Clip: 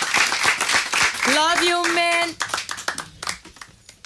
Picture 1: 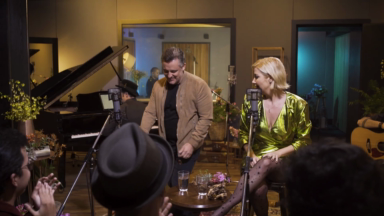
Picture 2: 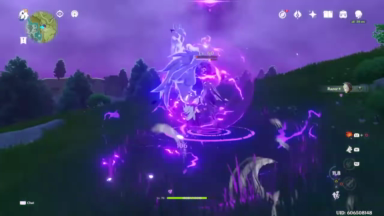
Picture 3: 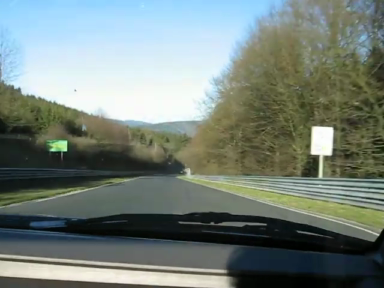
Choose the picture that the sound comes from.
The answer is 1